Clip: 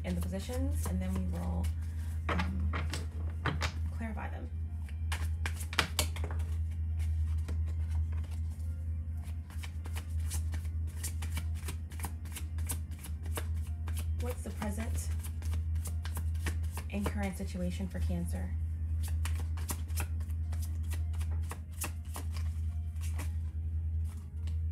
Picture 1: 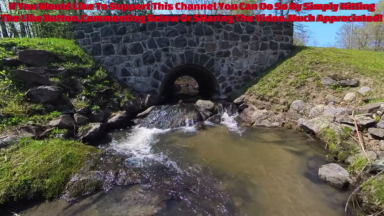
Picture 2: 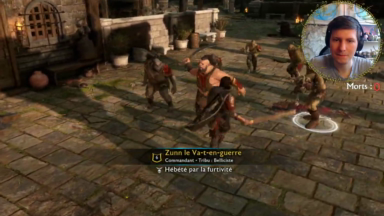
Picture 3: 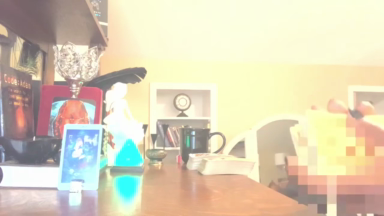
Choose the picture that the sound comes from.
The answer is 3